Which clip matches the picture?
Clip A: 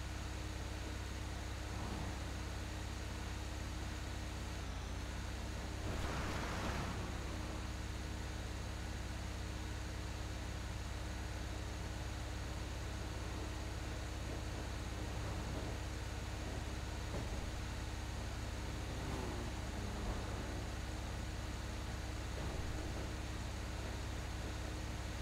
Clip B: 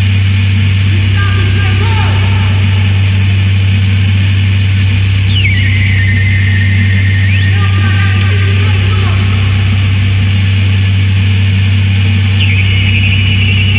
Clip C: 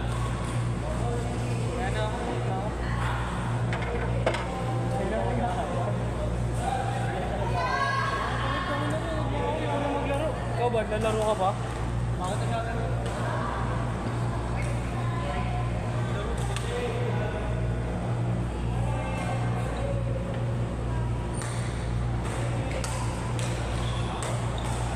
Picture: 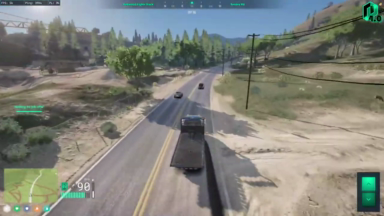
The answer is A